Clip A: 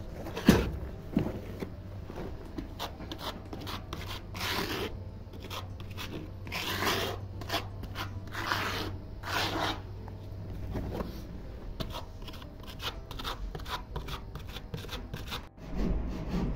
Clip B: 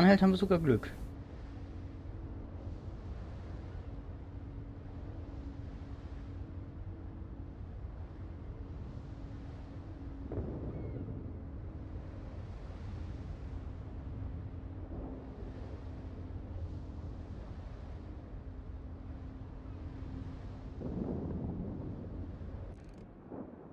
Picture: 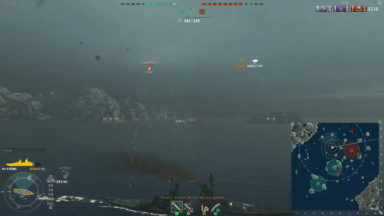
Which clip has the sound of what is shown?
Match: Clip B